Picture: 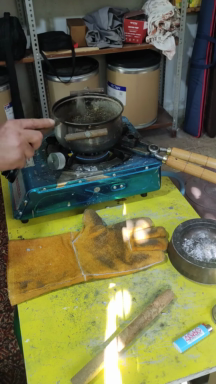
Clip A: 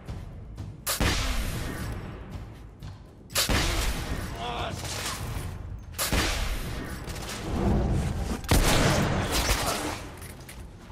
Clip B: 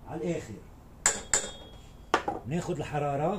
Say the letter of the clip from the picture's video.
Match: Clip B